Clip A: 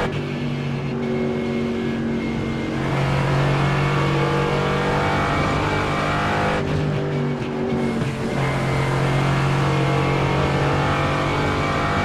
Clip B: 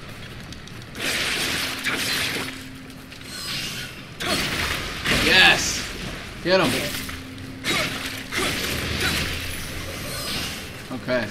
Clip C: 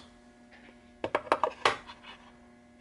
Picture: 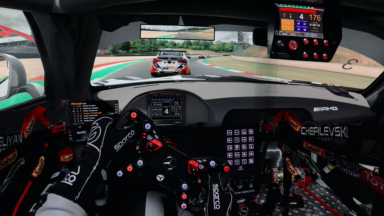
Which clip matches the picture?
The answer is A